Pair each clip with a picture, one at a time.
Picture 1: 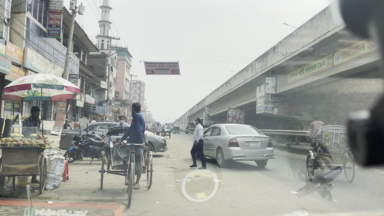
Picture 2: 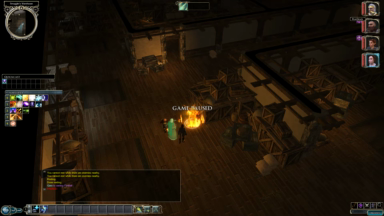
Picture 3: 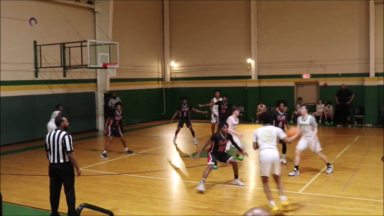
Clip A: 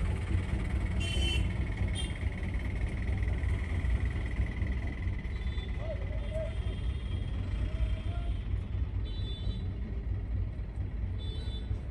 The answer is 1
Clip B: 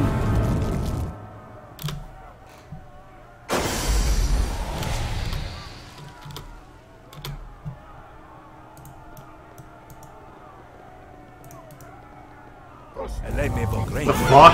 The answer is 2